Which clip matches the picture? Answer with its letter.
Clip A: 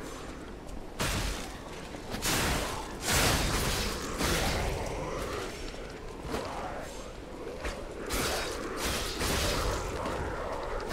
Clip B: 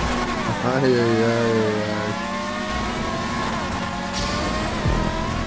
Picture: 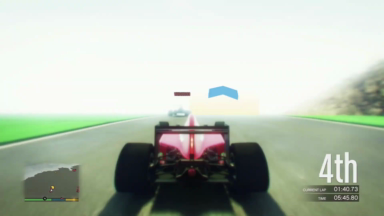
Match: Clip B